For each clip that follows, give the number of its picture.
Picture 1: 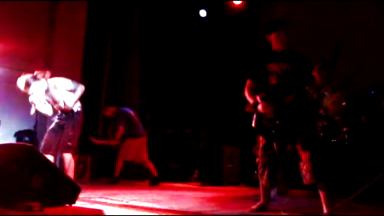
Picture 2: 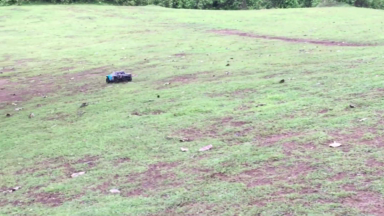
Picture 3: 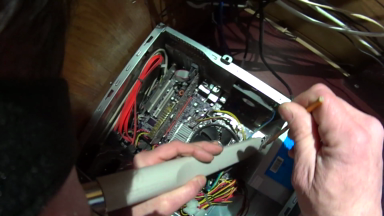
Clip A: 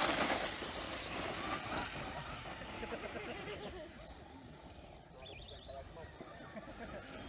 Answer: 2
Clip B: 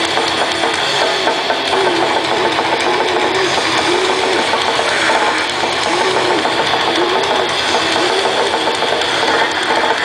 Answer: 1